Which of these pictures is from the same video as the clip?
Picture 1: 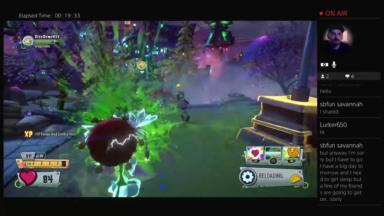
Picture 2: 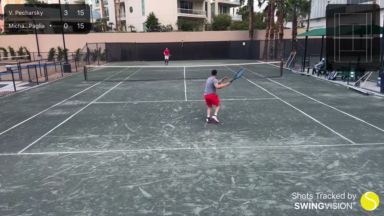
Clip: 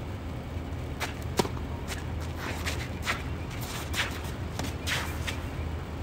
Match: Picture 2